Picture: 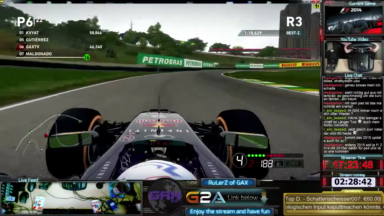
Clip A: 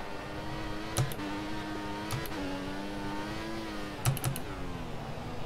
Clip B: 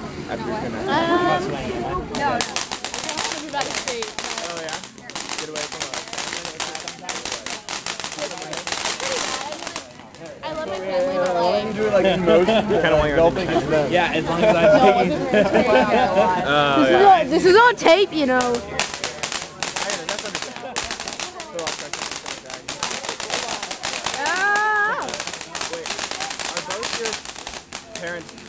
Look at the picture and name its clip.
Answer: A